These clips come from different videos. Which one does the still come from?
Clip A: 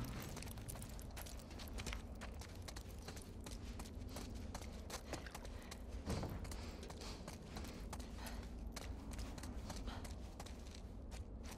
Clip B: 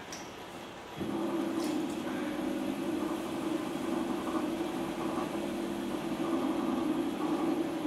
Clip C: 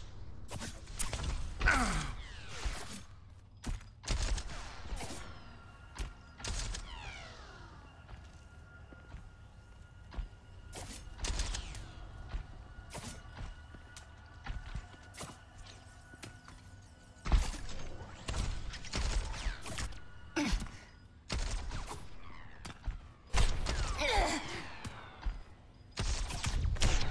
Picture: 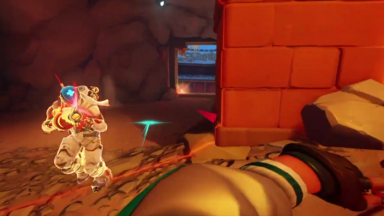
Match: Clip C